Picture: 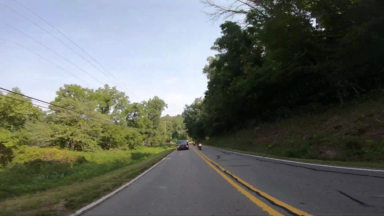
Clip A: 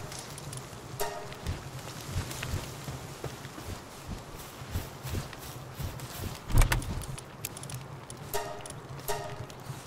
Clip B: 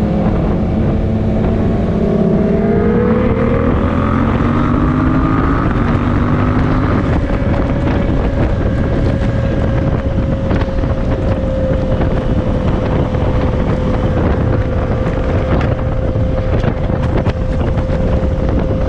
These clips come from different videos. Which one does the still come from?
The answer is B